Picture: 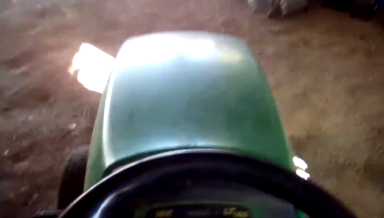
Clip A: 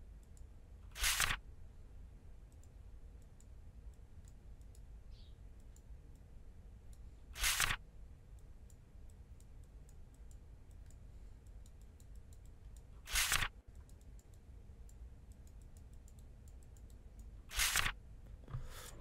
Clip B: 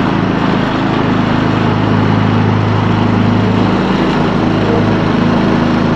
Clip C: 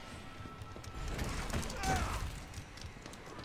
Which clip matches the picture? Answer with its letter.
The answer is B